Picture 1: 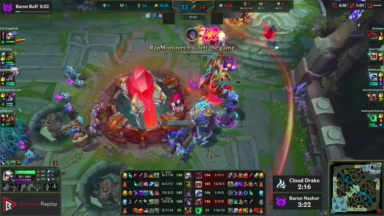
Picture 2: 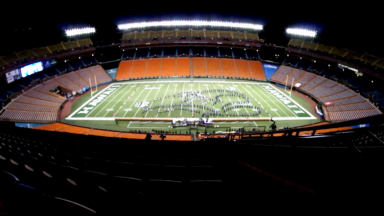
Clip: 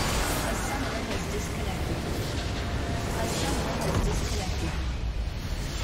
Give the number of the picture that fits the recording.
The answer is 1